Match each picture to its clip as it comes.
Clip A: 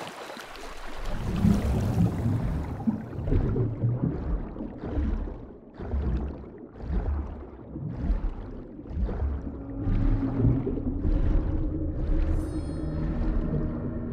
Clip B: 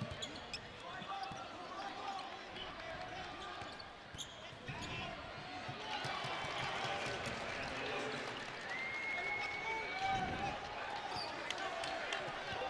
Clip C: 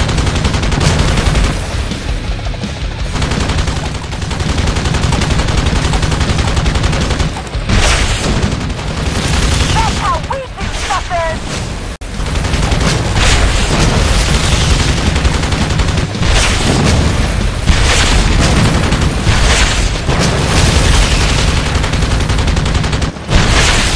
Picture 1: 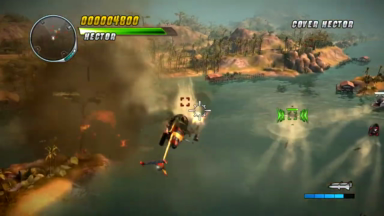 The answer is C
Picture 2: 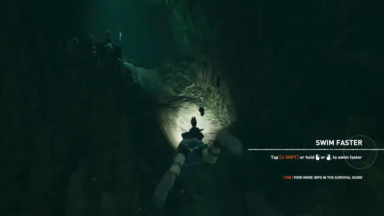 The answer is A